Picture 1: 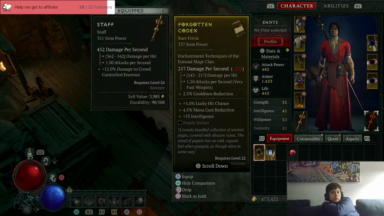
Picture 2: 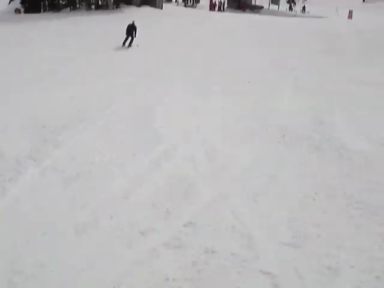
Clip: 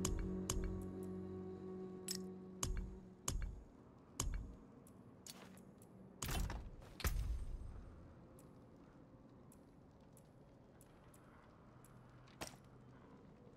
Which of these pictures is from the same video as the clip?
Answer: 1